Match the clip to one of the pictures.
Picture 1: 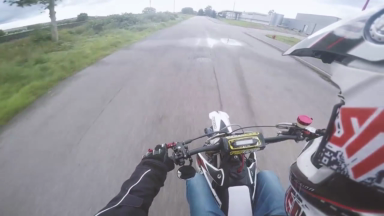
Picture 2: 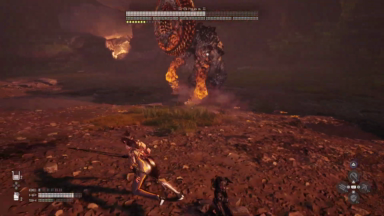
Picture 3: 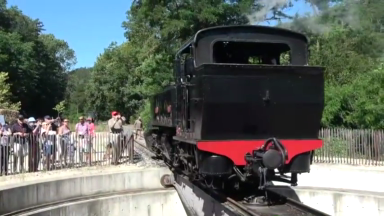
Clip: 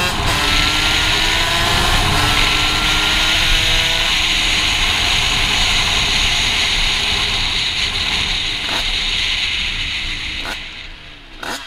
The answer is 1